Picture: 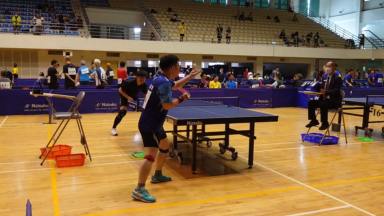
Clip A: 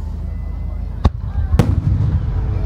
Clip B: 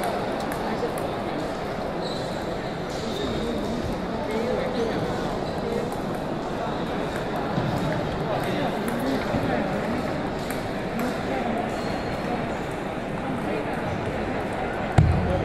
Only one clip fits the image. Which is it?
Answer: B